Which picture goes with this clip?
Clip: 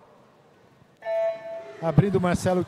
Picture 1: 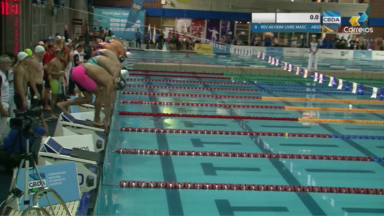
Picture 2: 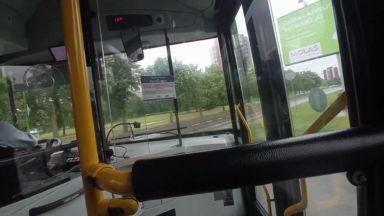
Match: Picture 1